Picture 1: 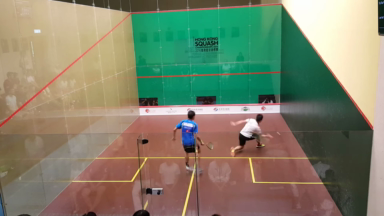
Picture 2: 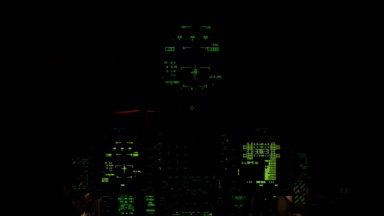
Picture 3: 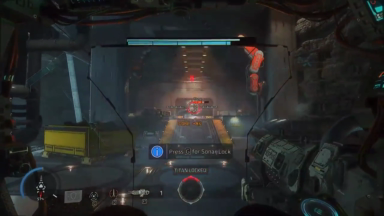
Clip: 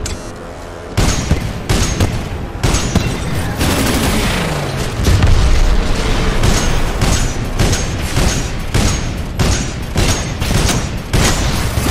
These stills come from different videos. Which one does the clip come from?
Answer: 3